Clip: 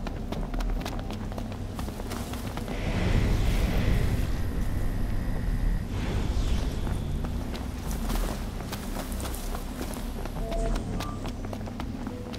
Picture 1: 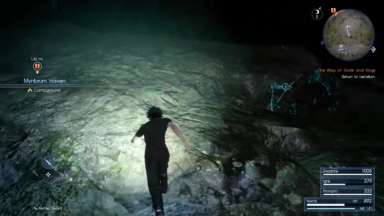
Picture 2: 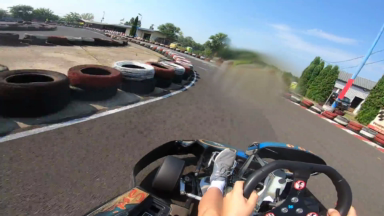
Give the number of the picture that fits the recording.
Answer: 1